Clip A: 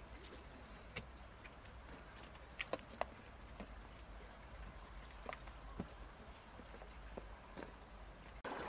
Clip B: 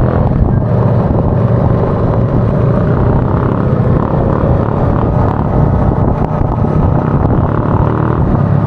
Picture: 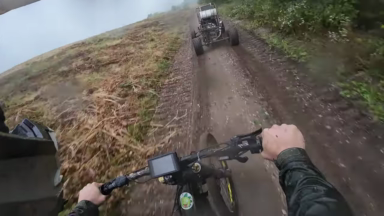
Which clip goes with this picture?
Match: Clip B